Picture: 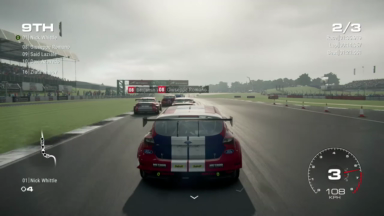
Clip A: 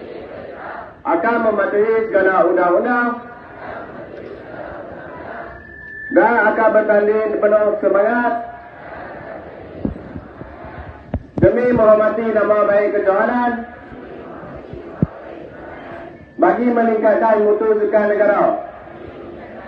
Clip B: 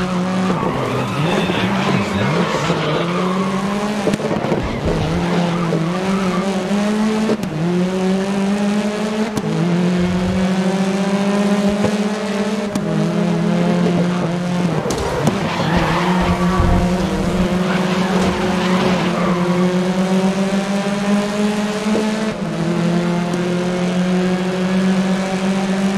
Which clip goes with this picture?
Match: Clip B